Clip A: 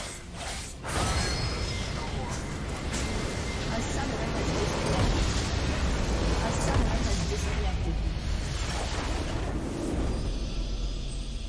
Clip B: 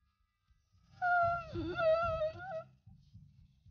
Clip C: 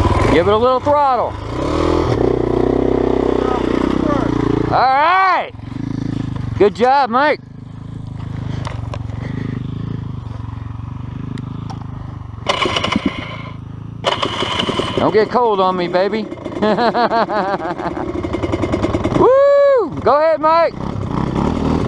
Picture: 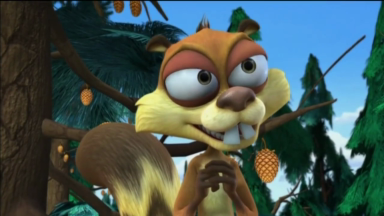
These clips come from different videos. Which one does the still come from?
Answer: B